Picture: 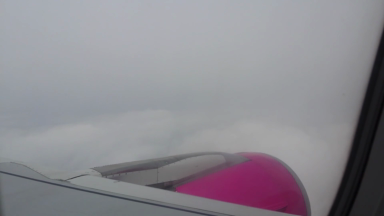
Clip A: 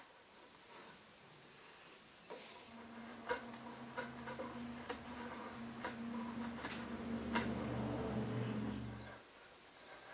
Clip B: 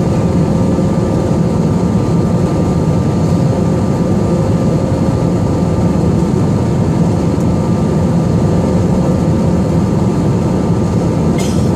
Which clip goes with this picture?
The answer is B